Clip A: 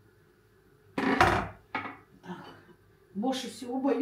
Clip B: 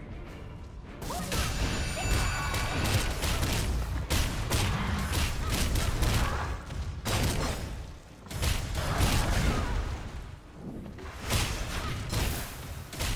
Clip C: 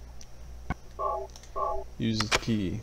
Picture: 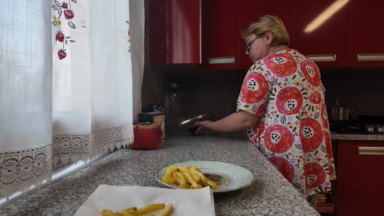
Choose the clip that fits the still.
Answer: A